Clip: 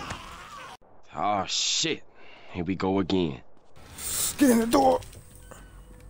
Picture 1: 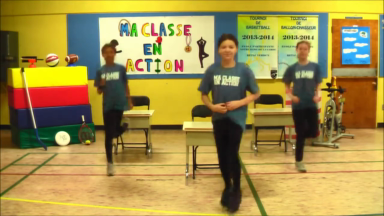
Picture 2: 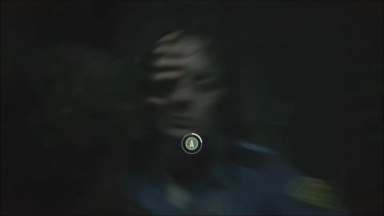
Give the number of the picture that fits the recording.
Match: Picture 2